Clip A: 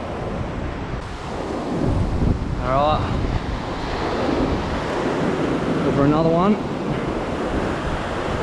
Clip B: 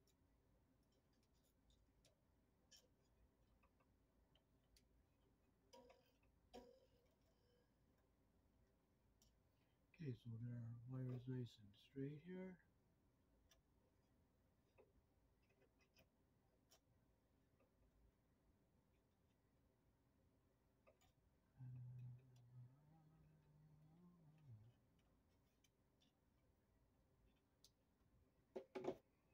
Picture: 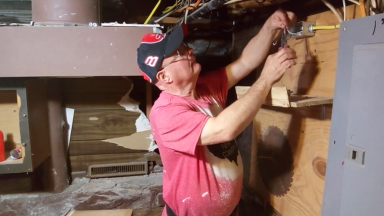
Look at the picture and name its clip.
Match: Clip B